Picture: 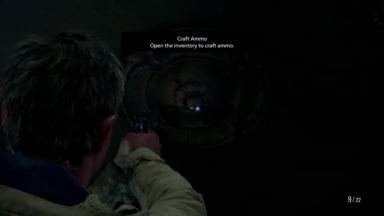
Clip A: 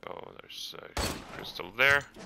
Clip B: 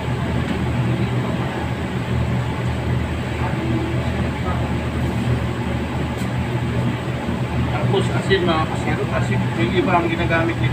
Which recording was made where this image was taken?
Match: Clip A